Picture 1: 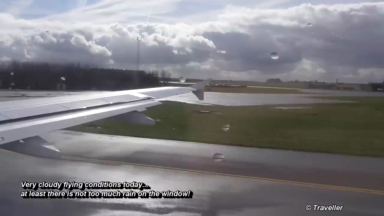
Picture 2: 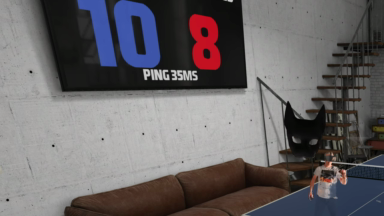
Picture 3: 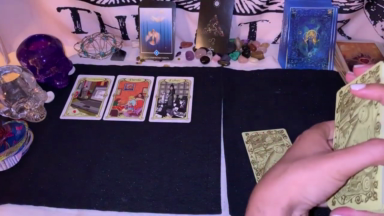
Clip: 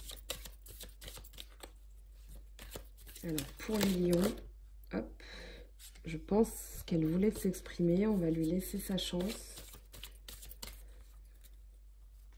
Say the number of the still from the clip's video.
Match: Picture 3